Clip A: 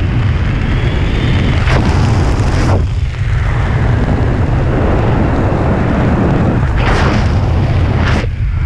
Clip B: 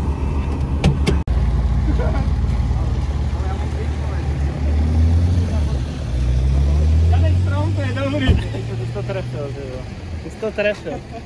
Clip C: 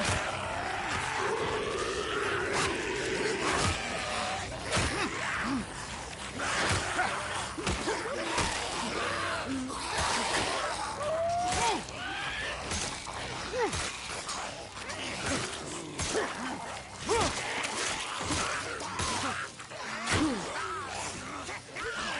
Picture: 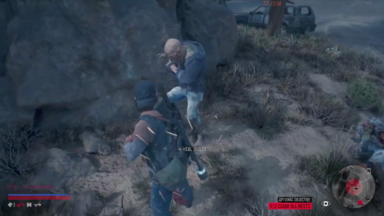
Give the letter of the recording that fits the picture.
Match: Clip C